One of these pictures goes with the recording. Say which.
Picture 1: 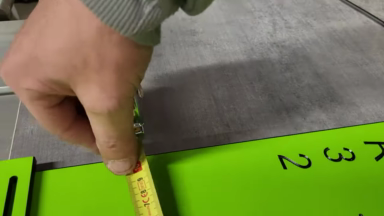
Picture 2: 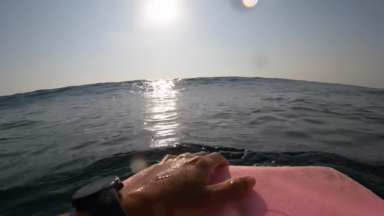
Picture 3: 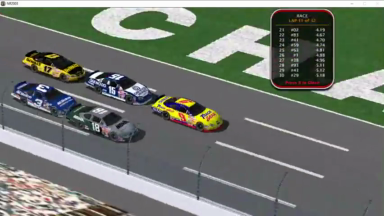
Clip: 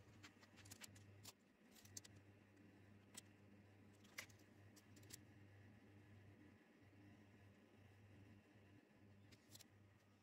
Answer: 1